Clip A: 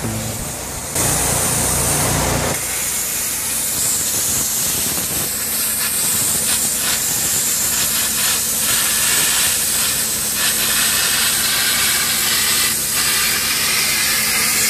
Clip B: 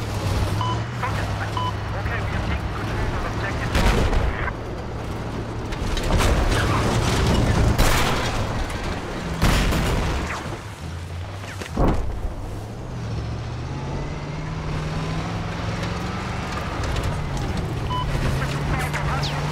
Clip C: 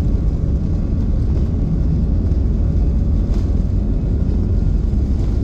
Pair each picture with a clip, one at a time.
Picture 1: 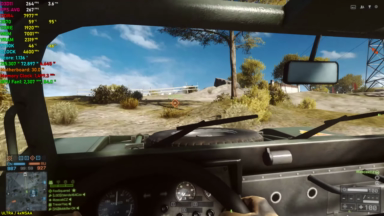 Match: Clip B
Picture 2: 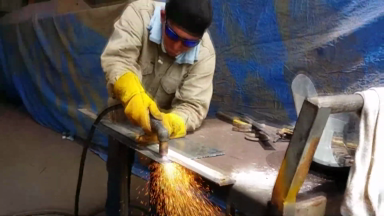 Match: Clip A